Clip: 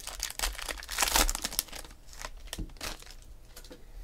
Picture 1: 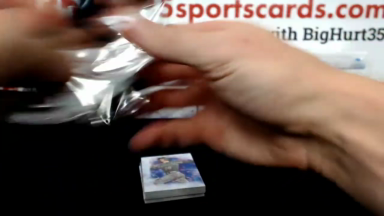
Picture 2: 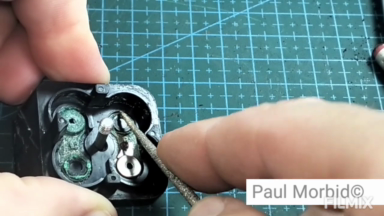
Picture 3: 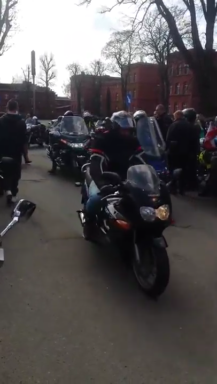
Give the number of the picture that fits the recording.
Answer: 1